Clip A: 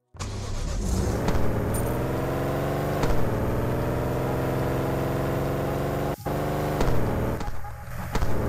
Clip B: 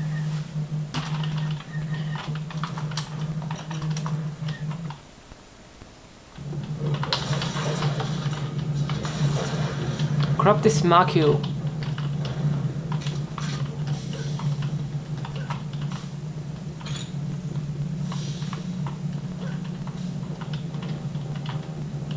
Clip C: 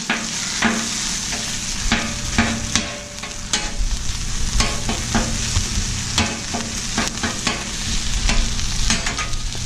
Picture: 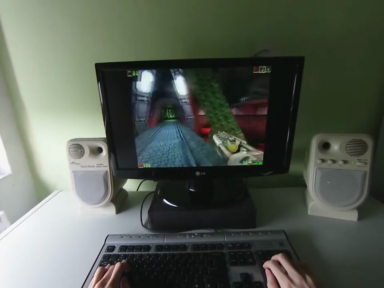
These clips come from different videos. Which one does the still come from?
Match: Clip B